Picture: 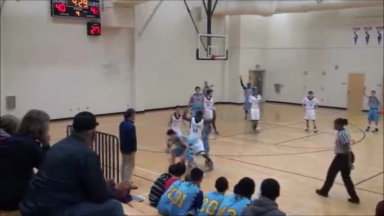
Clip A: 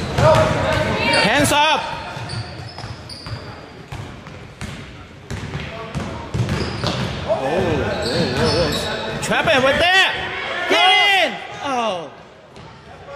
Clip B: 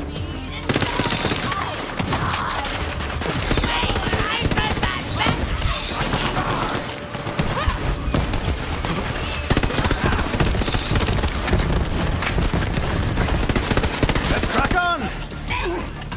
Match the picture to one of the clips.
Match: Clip A